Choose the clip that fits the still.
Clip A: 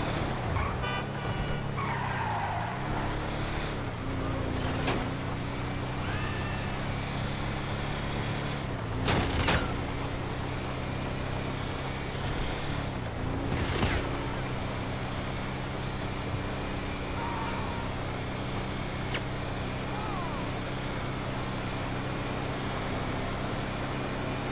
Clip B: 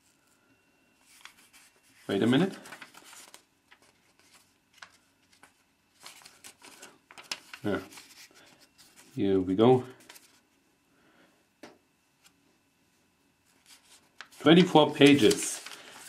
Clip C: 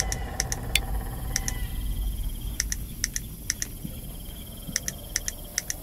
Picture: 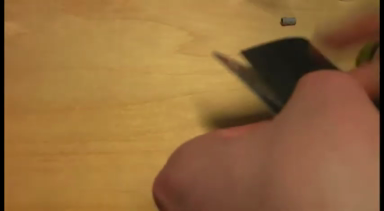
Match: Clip B